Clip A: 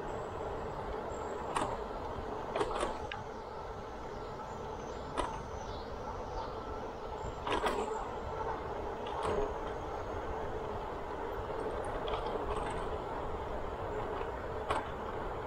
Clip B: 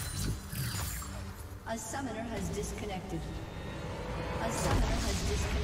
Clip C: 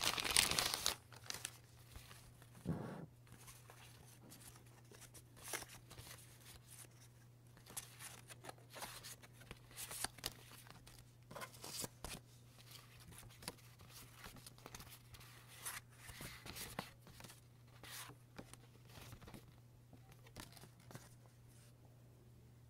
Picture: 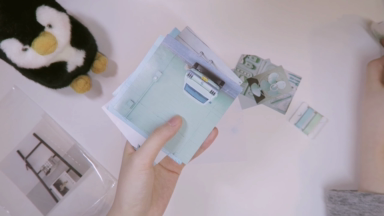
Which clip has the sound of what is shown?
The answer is C